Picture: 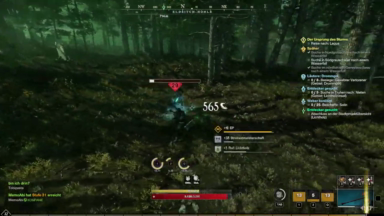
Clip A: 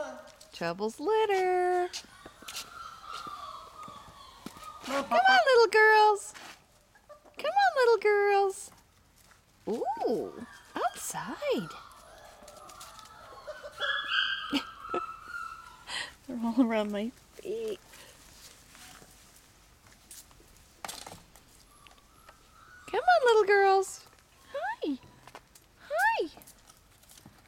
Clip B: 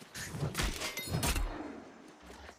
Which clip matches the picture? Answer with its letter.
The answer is B